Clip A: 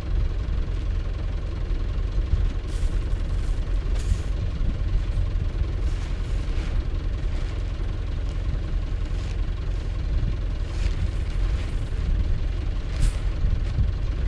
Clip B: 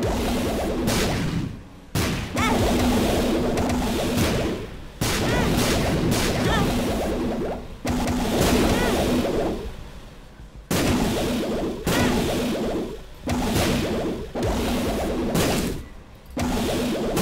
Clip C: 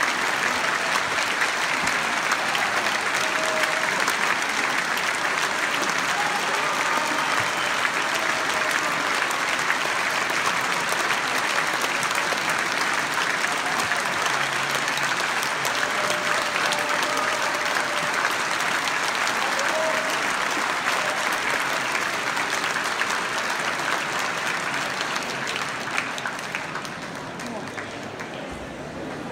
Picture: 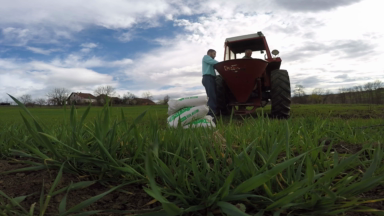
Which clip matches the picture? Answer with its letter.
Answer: A